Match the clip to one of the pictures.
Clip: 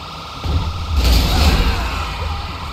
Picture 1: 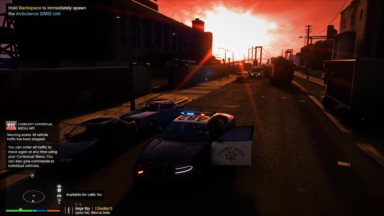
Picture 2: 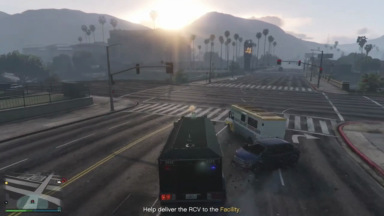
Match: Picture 2